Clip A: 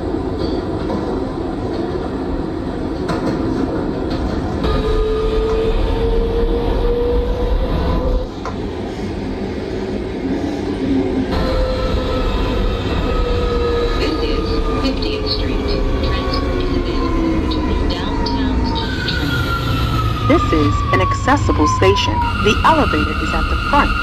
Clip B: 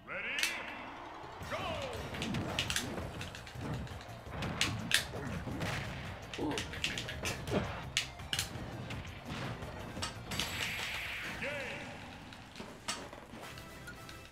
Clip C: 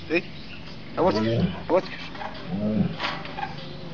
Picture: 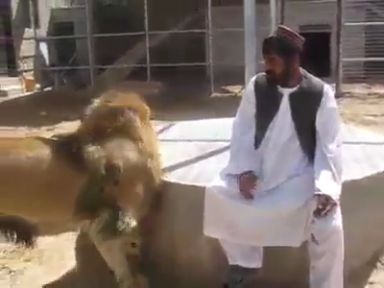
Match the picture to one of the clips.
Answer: C